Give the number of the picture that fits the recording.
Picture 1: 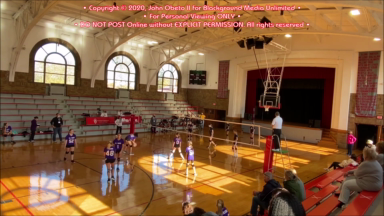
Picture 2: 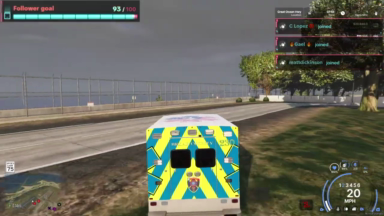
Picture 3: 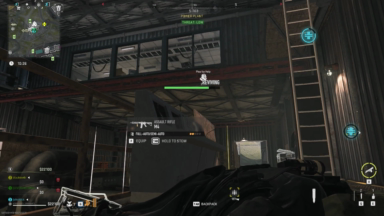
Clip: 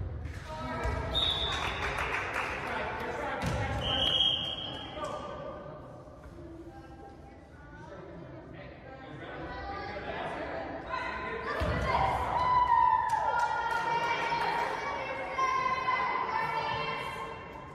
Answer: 1